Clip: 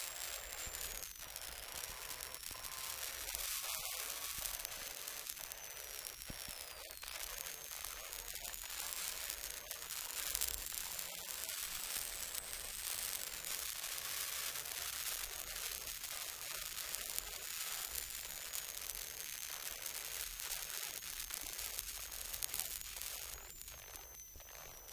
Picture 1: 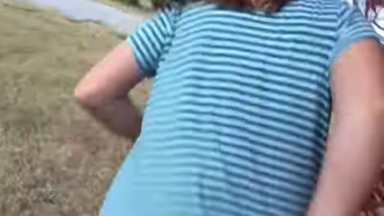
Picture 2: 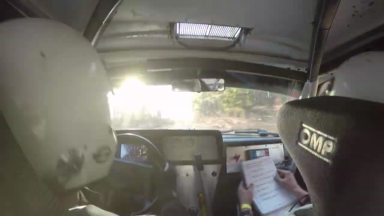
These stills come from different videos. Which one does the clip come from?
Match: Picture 2